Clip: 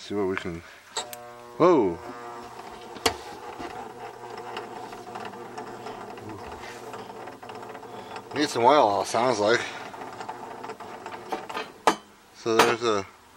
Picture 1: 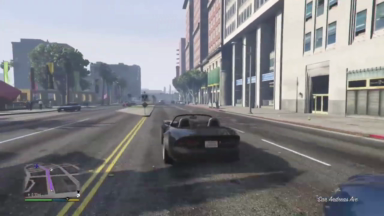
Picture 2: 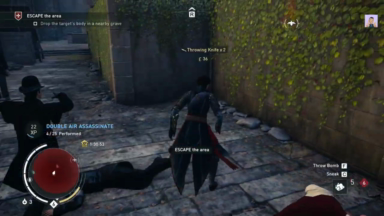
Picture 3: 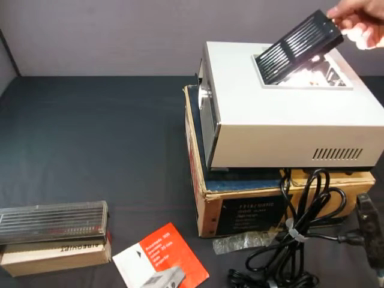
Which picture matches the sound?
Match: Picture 3